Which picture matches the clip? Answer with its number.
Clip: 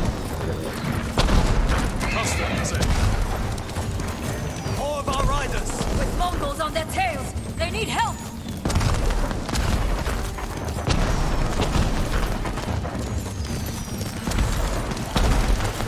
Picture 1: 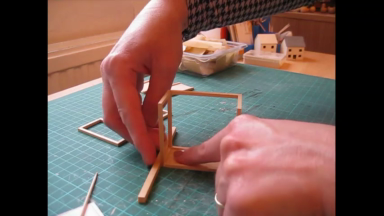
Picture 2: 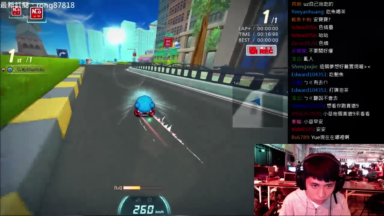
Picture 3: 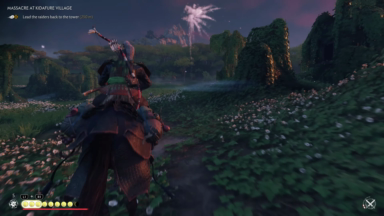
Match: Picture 3